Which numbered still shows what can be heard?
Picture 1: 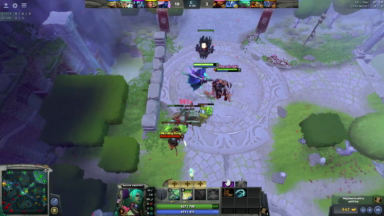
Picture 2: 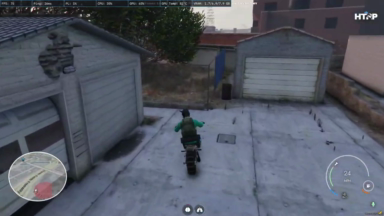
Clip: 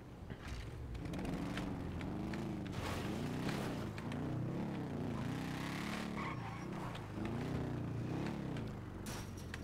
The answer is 2